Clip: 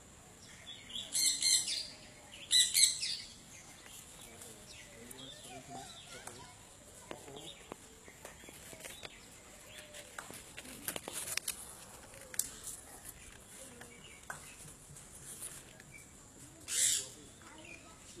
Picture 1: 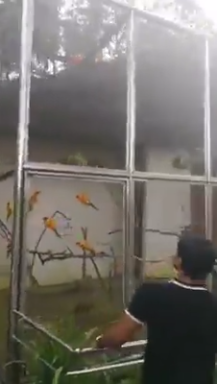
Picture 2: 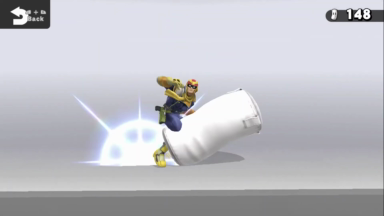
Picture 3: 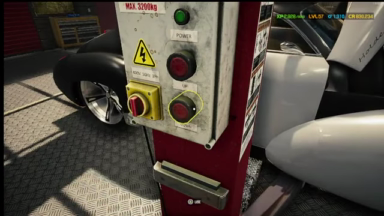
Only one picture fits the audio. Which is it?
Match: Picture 1